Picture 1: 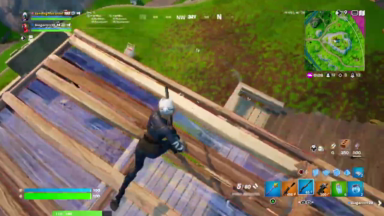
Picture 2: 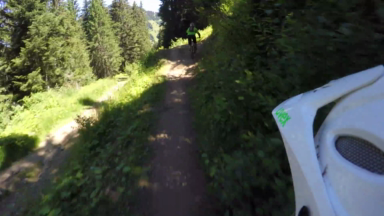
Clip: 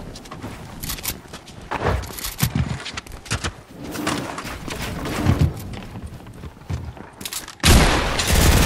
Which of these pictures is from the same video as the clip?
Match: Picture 1